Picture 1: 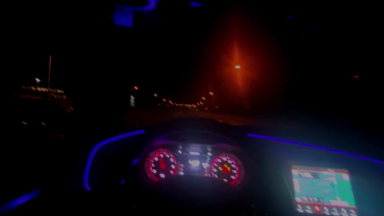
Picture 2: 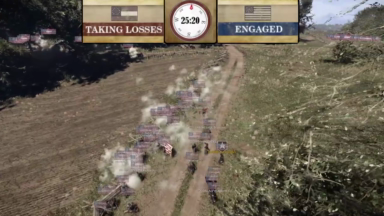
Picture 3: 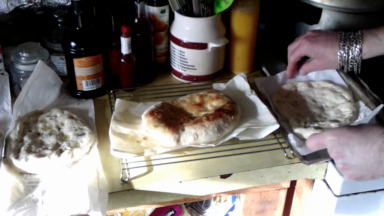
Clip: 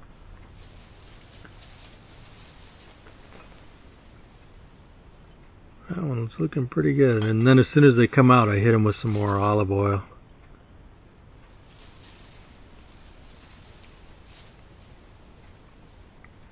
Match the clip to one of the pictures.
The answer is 3